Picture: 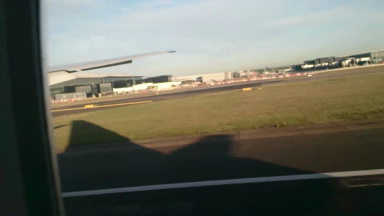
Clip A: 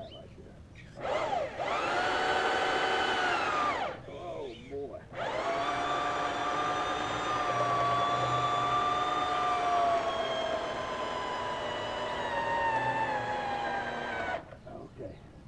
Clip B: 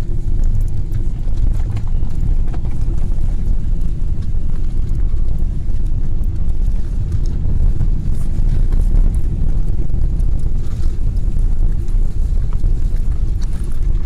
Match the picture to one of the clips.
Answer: B